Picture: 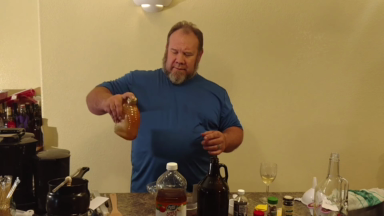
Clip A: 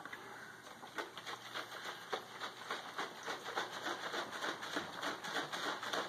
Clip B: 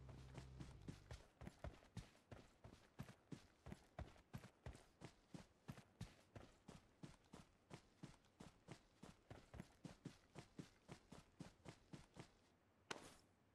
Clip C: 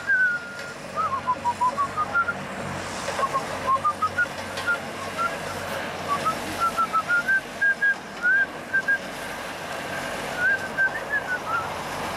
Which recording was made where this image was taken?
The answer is A